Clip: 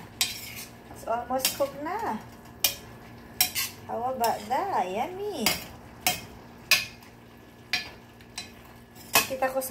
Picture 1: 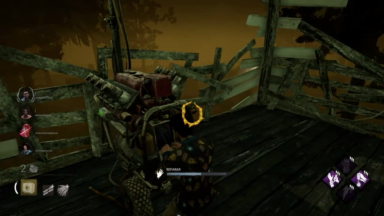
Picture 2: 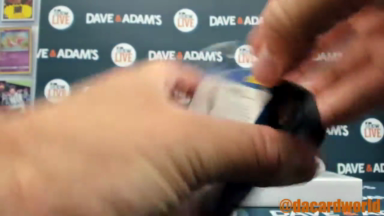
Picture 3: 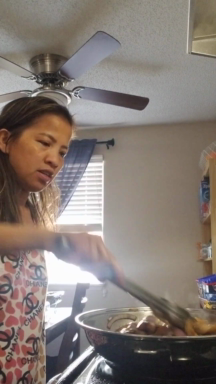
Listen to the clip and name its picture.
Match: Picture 3